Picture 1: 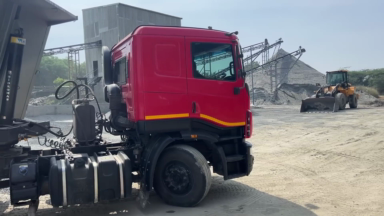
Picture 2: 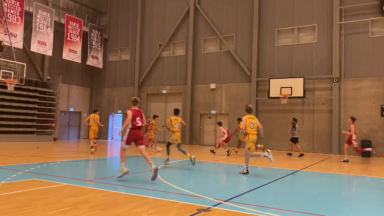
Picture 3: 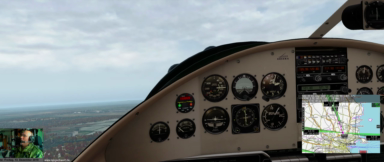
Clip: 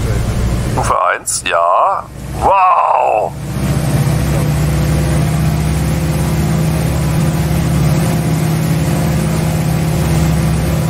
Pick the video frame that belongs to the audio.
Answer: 3